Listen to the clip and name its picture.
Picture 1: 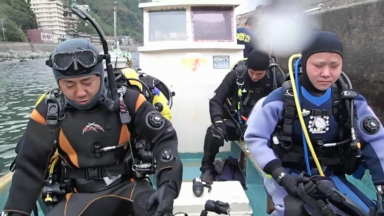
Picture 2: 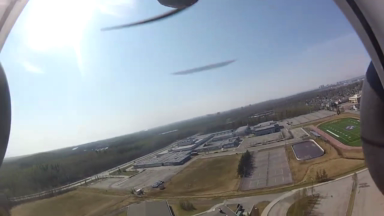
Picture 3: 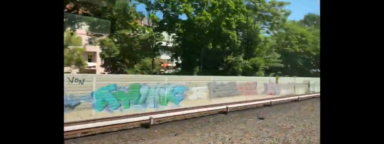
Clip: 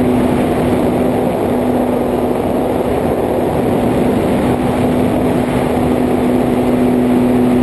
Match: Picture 2